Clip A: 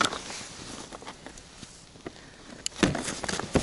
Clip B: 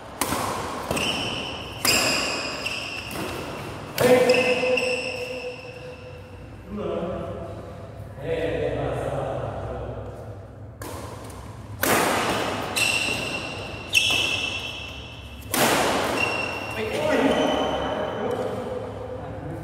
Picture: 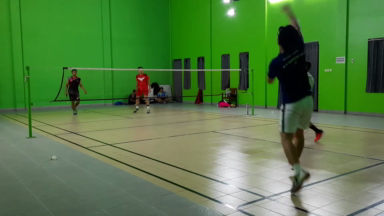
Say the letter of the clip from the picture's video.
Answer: B